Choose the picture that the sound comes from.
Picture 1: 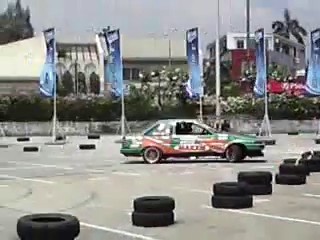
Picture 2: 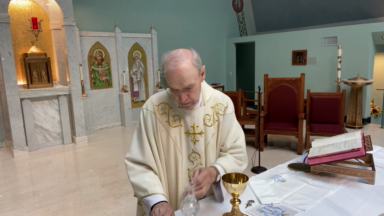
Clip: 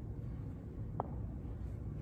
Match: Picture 2